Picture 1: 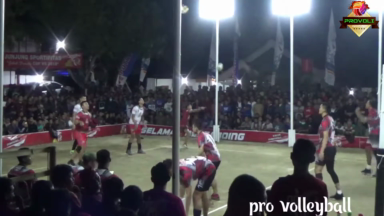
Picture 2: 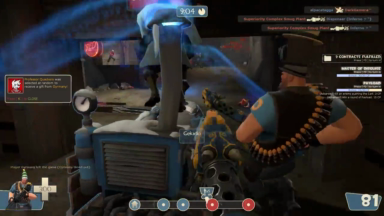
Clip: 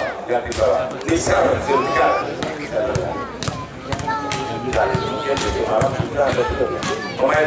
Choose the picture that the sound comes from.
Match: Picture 1